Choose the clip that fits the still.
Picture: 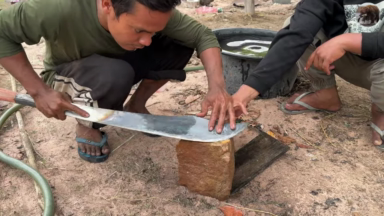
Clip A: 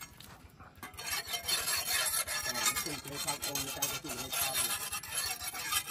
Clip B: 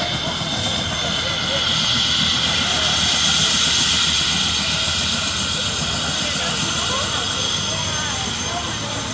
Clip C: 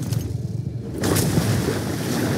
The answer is A